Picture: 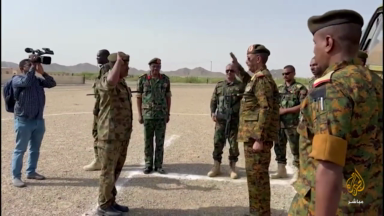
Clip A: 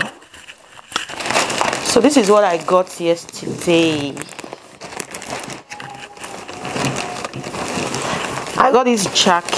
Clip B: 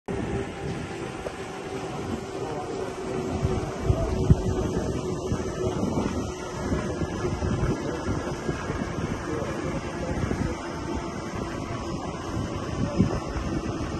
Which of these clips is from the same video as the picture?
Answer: B